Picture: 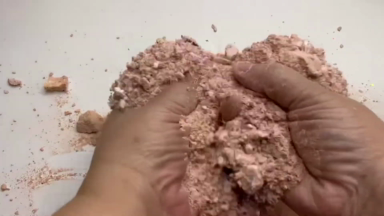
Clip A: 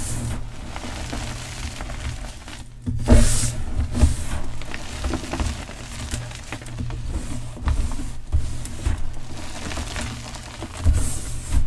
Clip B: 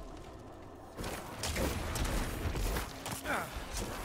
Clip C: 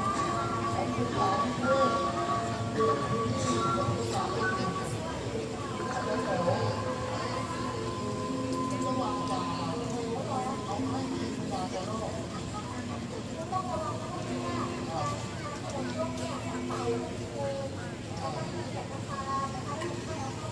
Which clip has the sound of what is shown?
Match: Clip A